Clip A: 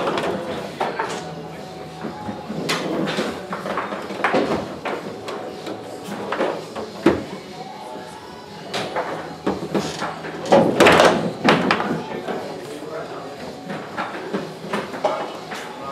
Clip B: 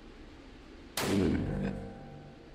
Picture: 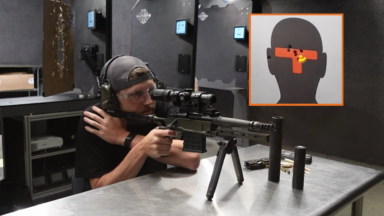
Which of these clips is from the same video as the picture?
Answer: B